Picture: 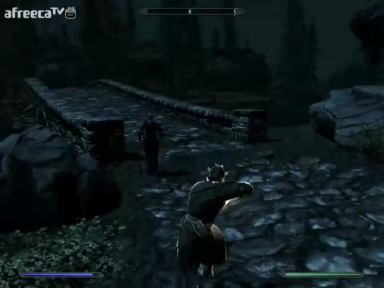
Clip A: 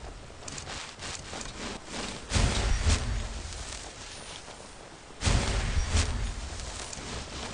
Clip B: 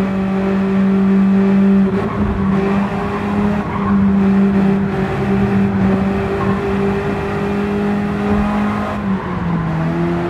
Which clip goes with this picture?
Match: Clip A